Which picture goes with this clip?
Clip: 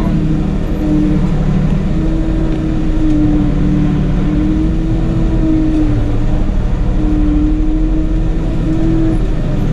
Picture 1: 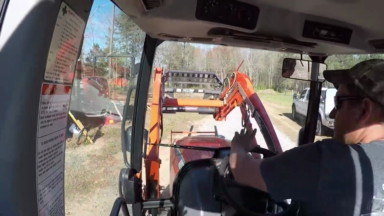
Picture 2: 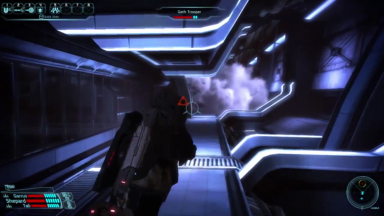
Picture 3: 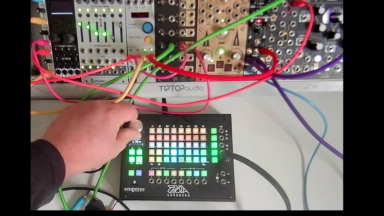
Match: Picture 1